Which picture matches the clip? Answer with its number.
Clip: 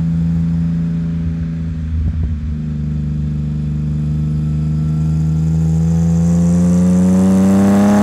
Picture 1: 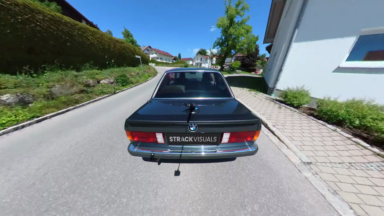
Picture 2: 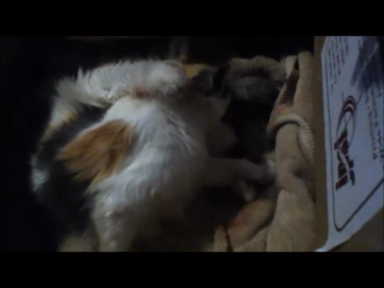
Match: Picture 1